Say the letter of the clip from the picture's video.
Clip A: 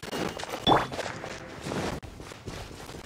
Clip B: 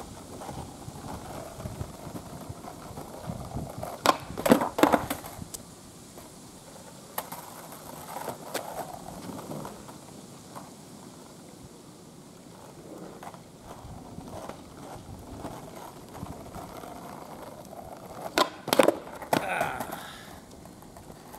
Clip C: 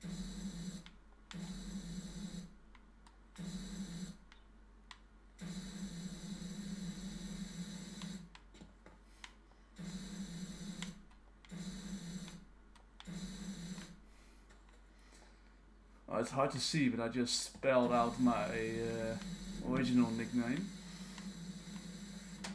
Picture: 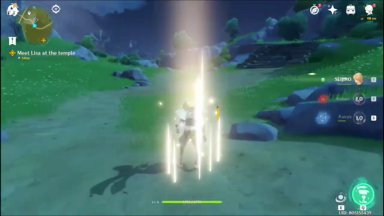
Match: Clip A